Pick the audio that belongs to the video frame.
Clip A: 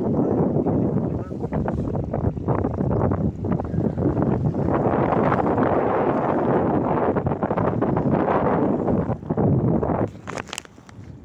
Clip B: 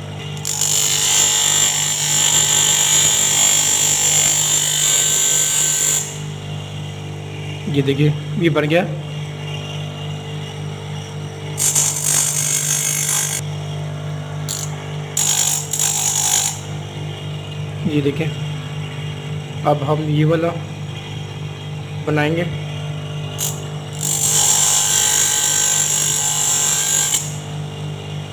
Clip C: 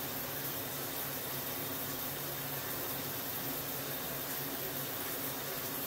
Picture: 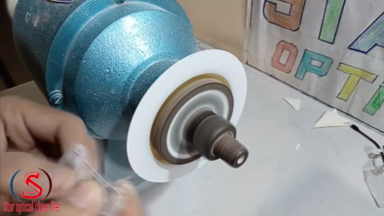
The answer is B